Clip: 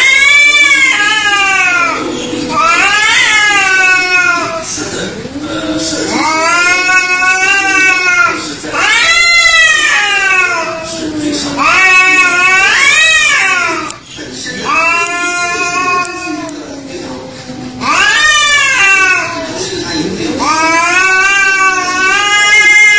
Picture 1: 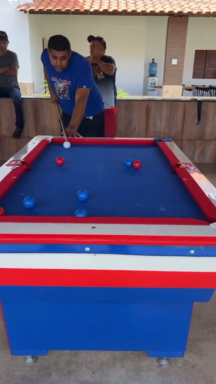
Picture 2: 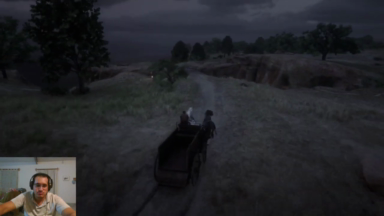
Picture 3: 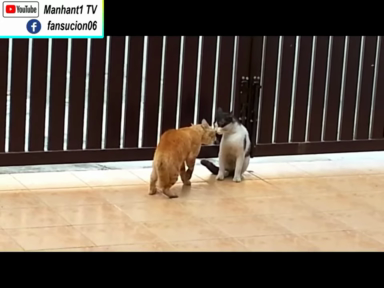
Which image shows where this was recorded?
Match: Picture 3